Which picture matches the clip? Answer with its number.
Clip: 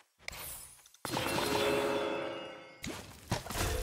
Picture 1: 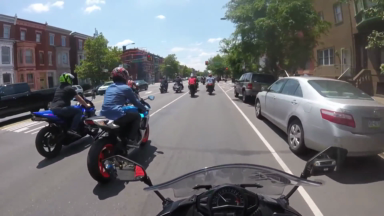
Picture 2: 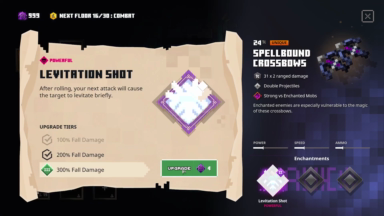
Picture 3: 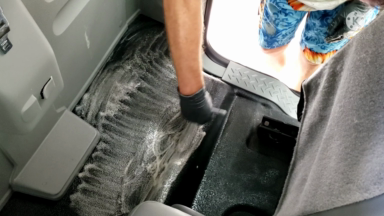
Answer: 2